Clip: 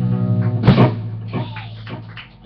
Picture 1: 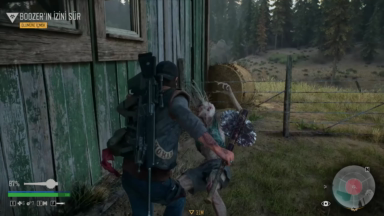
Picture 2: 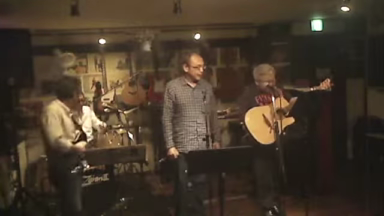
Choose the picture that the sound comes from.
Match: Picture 2